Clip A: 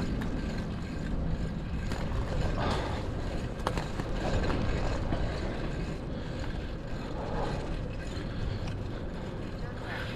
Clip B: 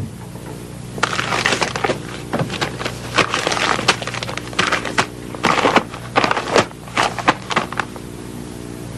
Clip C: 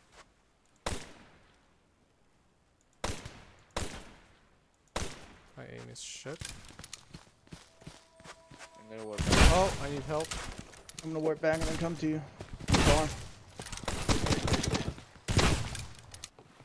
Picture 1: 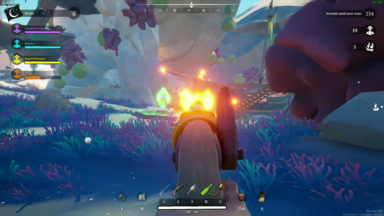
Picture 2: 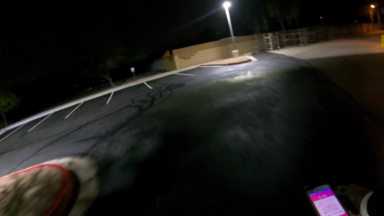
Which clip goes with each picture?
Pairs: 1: C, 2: A